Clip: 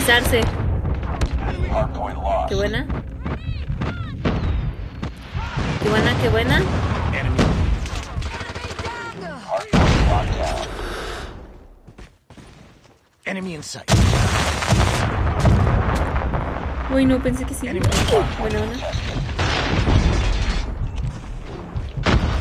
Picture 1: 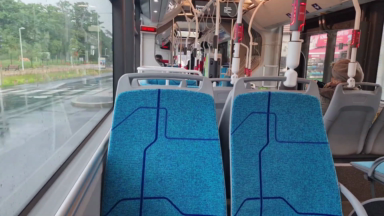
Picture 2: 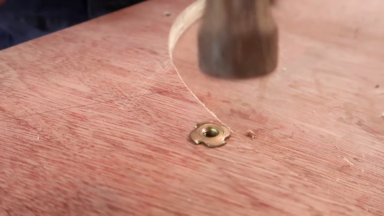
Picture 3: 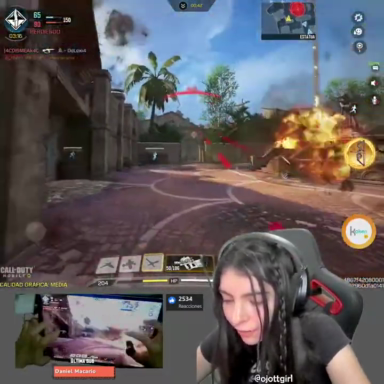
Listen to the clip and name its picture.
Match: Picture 3